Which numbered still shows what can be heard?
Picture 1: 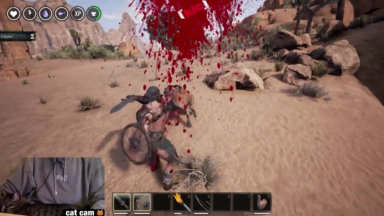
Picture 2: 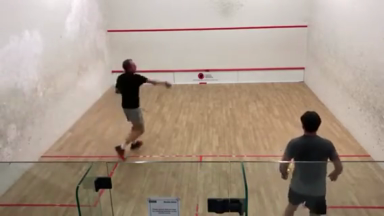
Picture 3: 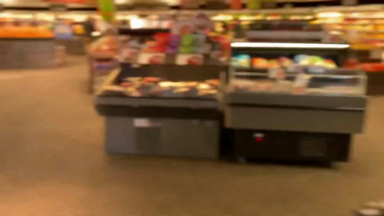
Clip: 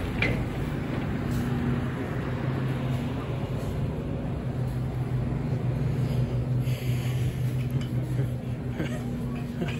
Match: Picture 3